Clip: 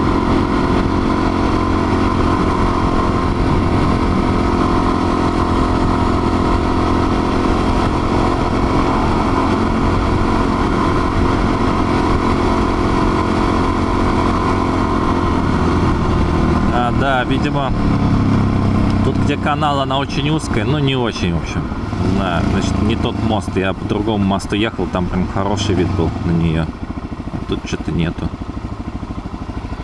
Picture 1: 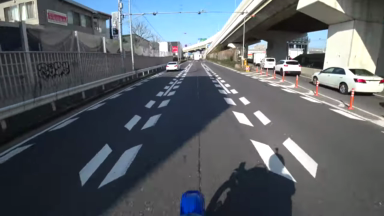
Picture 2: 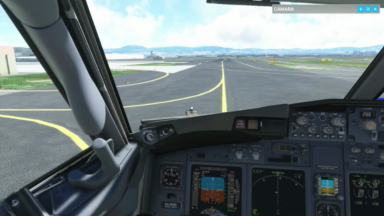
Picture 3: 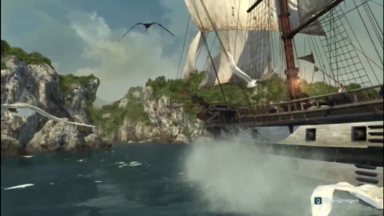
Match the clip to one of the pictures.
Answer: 1